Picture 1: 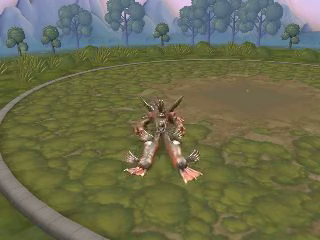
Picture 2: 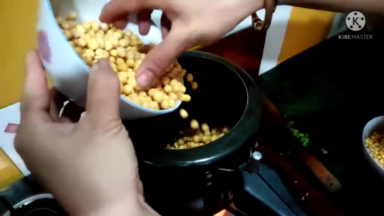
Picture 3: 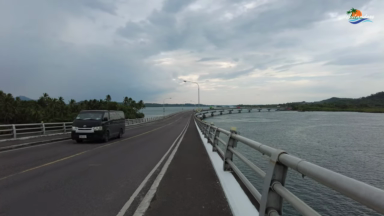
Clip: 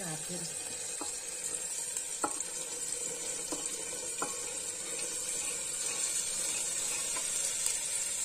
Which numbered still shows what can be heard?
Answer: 2